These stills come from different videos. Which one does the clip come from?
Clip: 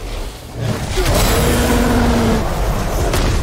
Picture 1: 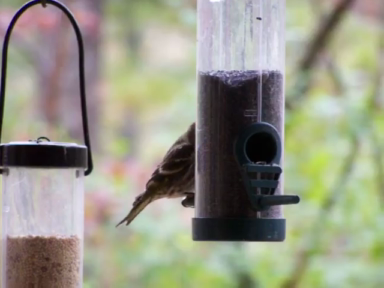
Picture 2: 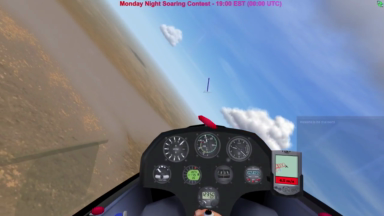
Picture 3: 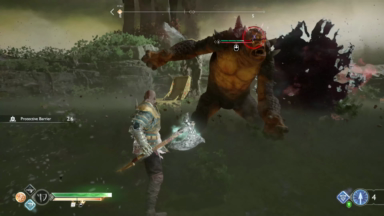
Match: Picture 3